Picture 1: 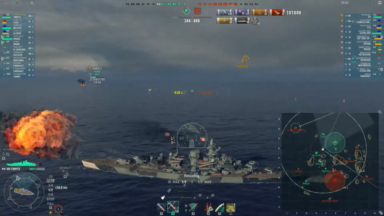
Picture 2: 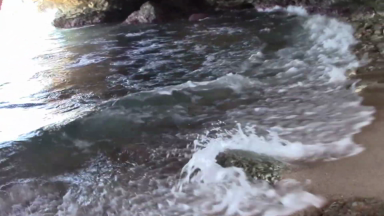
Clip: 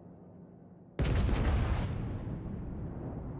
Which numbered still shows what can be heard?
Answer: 1